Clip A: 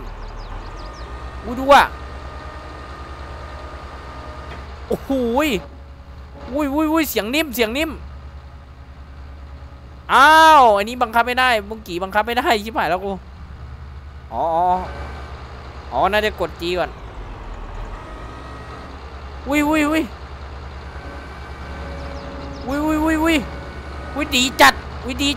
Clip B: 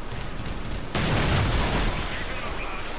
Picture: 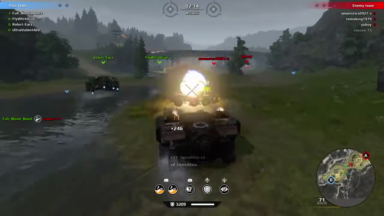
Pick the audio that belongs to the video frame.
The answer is B